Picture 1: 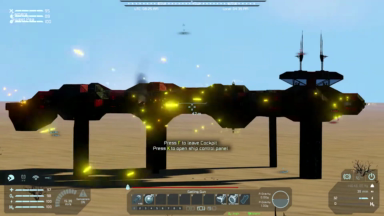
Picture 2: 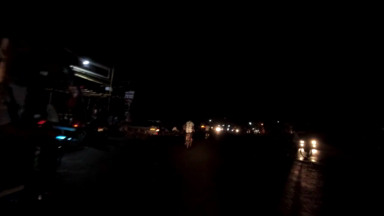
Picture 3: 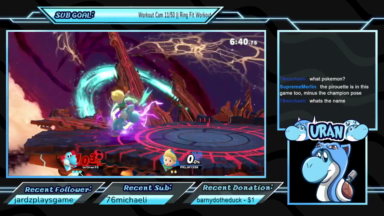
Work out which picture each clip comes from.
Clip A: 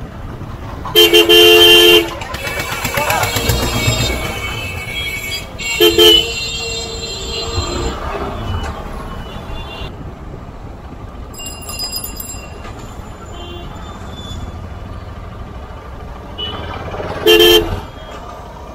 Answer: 2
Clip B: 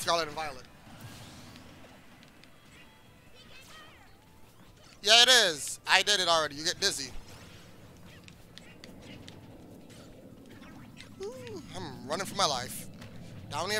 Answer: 3